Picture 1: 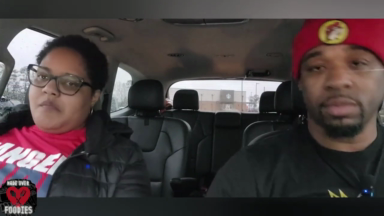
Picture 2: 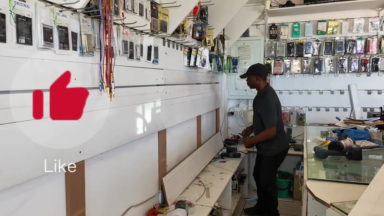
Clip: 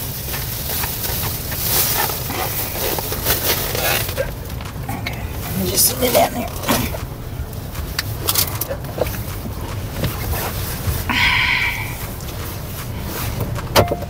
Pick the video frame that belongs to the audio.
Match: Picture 1